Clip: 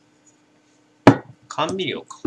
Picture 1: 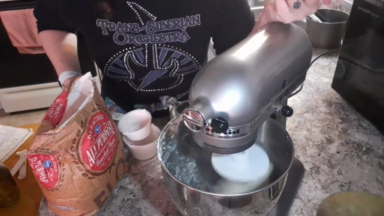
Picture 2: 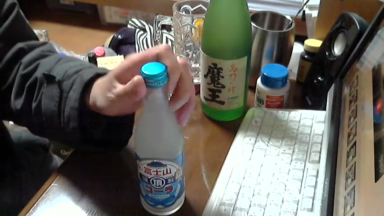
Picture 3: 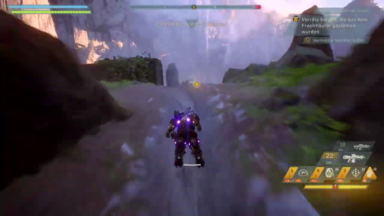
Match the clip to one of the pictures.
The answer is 2